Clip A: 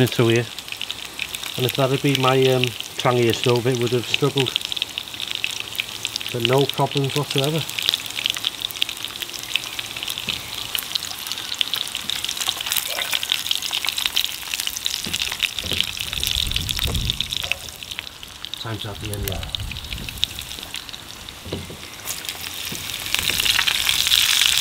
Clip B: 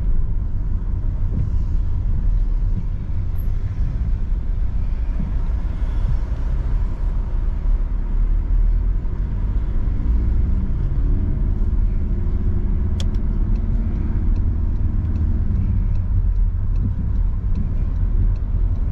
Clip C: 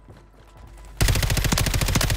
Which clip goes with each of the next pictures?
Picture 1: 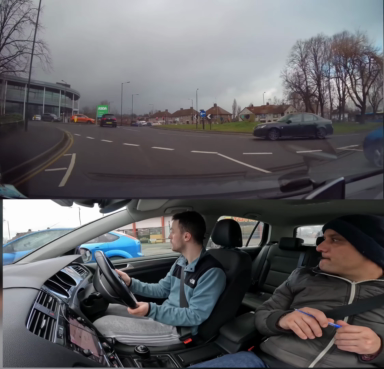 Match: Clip B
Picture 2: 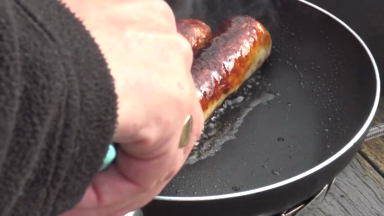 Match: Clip A